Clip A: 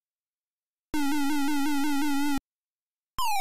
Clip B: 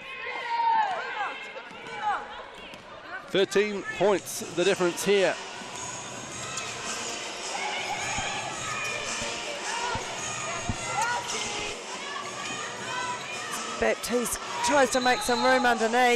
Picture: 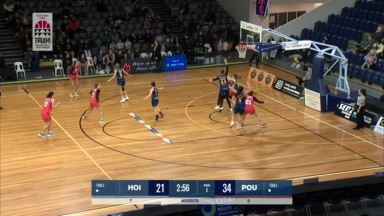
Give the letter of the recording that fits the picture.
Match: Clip B